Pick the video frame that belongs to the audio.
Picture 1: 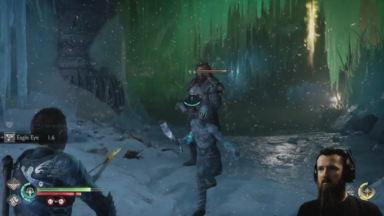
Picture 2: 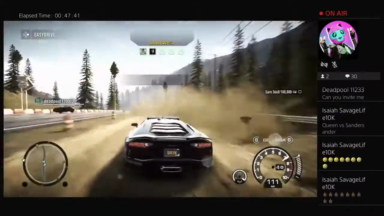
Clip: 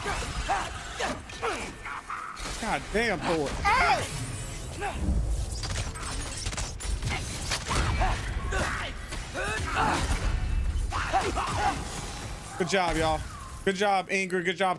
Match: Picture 1